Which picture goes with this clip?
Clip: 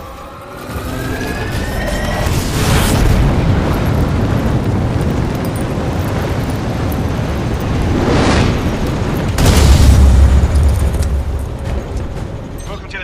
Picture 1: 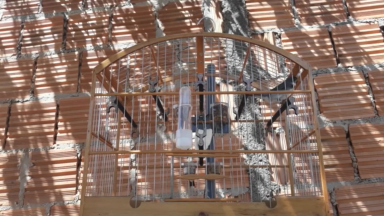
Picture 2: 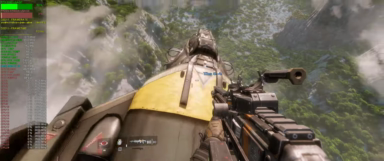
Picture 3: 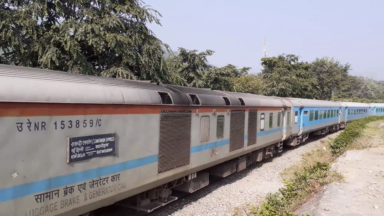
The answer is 2